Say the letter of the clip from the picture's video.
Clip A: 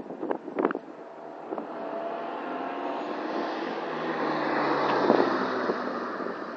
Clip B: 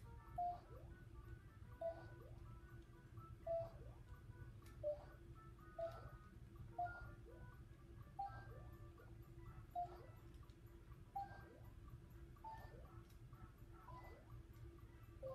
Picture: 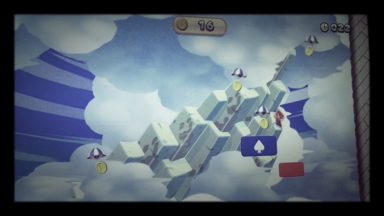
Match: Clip B